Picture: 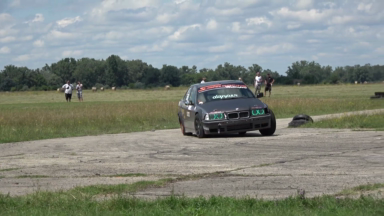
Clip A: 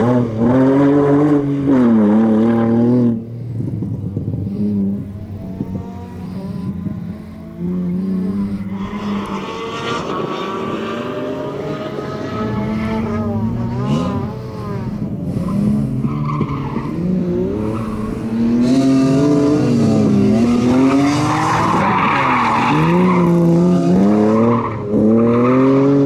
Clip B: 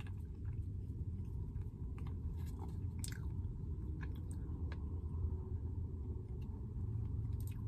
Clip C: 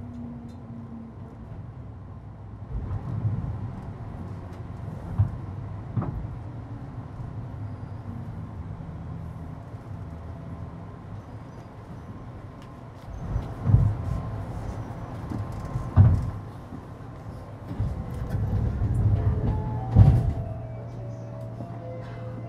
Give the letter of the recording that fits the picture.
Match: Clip A